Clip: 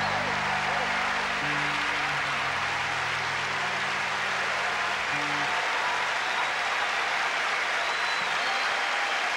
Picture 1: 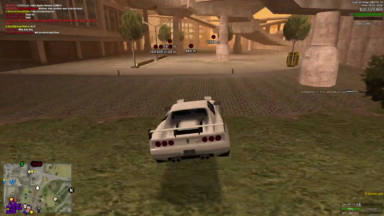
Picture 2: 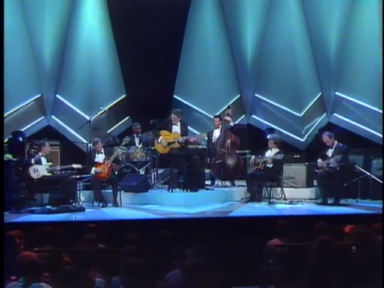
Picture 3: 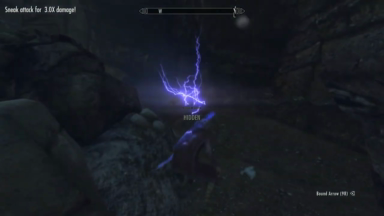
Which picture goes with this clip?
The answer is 2